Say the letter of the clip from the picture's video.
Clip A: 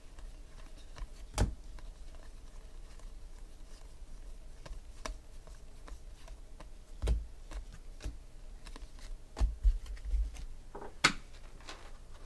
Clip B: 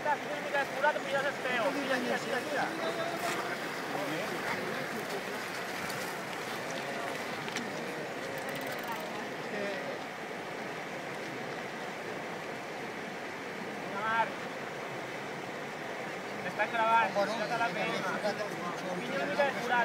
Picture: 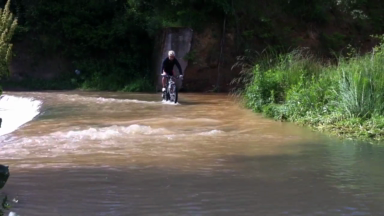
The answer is B